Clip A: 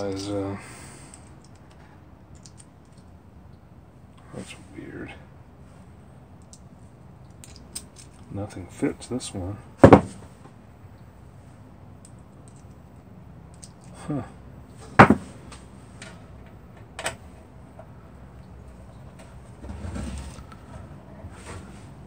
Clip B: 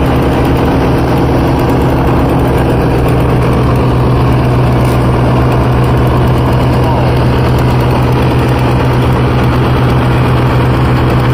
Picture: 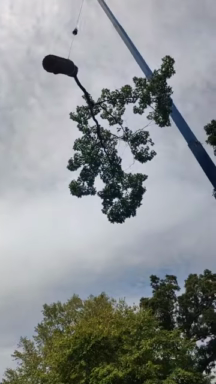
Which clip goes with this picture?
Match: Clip B